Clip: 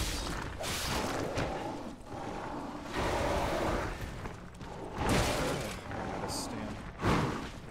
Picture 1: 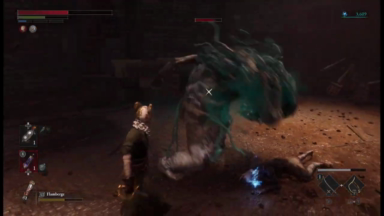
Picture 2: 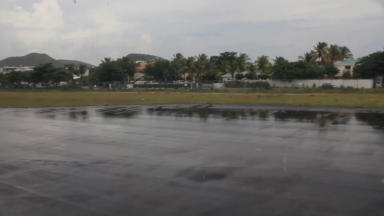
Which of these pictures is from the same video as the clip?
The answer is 1